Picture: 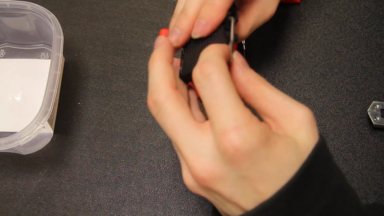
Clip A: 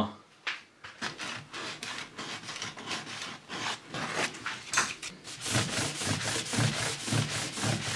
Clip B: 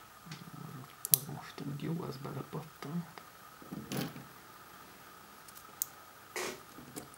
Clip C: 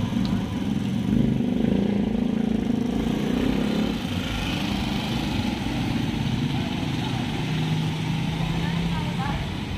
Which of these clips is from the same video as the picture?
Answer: B